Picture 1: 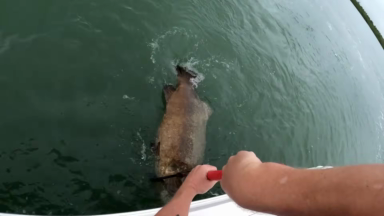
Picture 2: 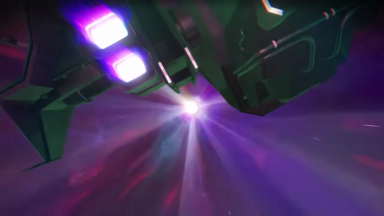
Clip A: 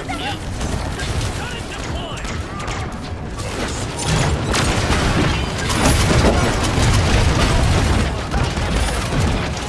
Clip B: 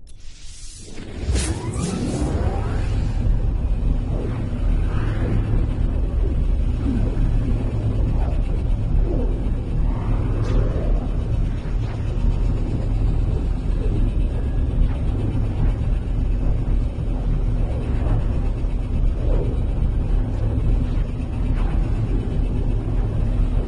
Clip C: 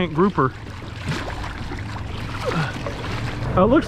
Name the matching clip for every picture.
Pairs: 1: C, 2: B